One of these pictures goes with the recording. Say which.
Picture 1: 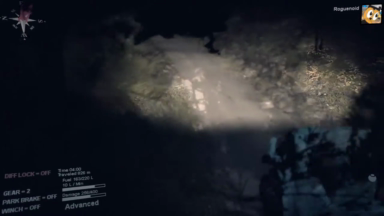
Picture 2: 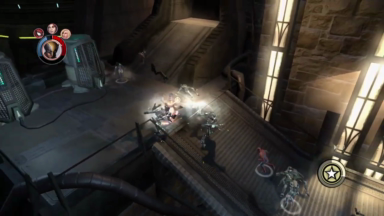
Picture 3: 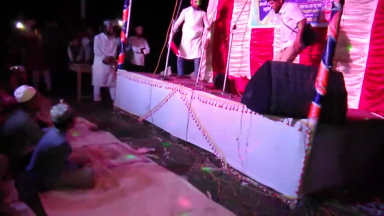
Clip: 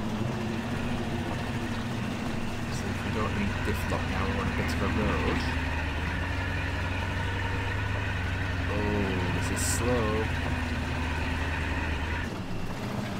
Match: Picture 1